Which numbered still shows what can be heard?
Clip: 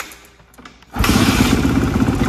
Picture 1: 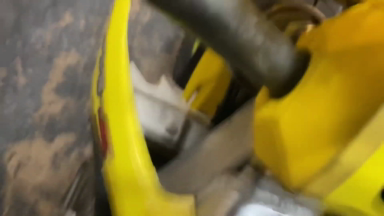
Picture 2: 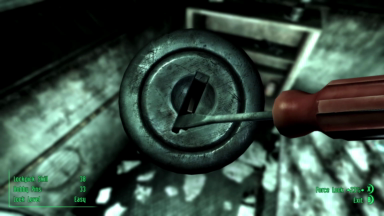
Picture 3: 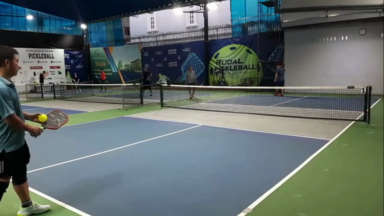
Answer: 1